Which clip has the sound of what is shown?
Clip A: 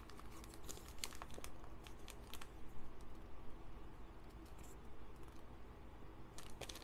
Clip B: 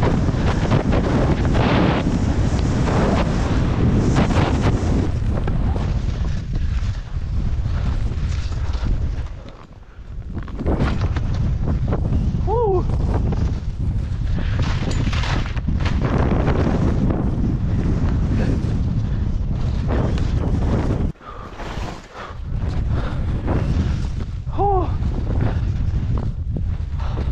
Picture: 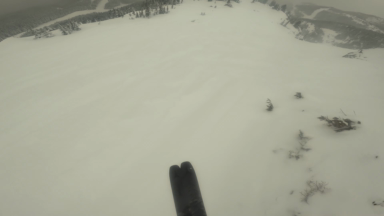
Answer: B